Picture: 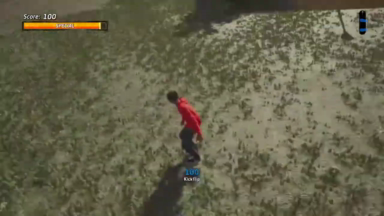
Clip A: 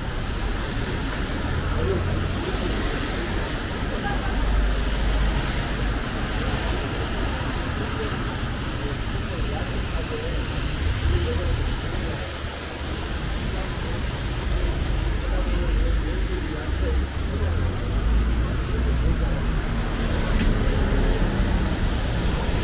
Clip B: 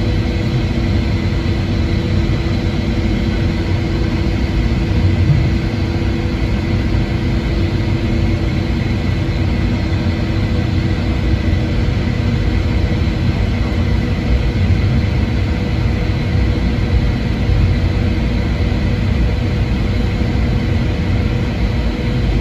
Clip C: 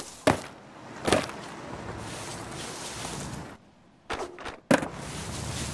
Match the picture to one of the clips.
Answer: C